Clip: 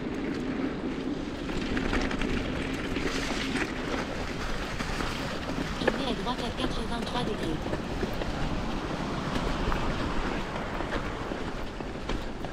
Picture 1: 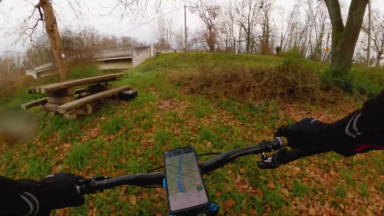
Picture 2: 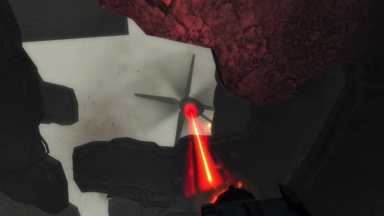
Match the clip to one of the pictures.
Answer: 1